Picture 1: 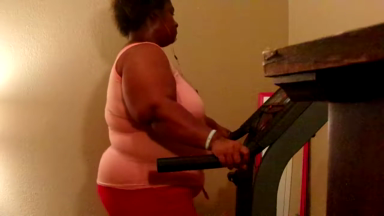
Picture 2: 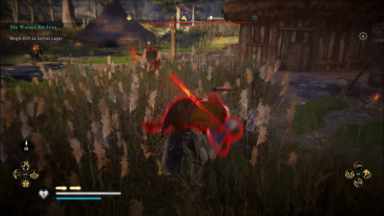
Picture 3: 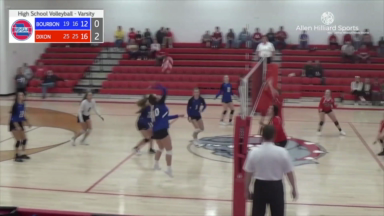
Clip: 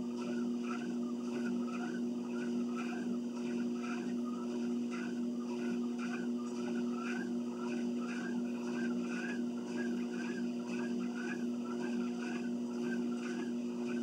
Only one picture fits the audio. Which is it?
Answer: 1